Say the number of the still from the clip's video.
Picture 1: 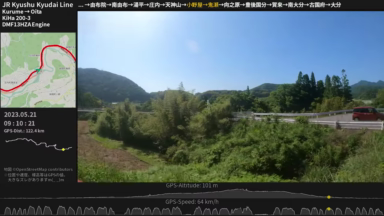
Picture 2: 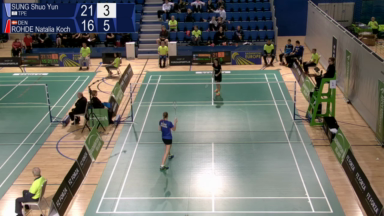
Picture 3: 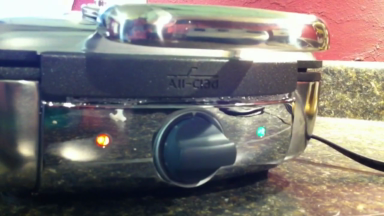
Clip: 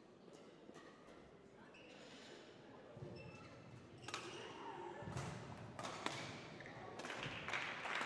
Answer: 2